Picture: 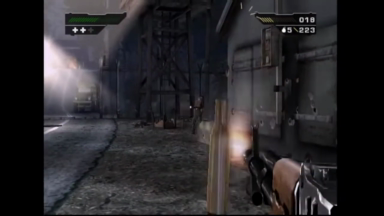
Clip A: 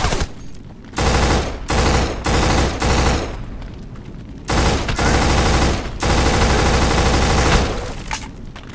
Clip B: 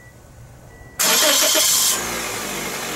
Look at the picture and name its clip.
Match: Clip A